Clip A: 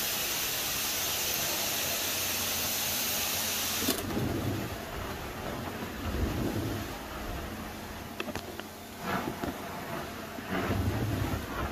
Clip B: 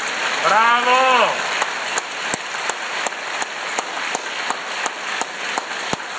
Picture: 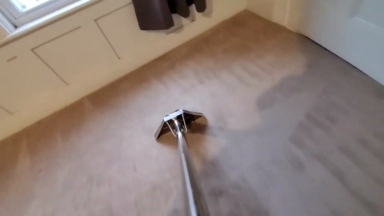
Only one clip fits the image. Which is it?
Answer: A